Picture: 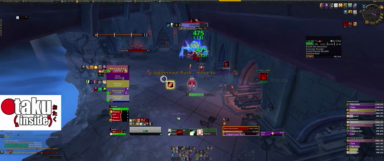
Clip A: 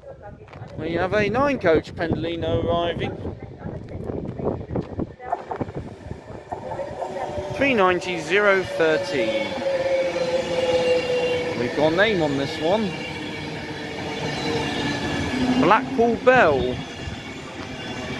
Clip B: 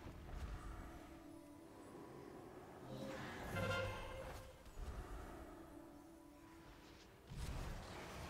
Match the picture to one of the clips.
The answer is B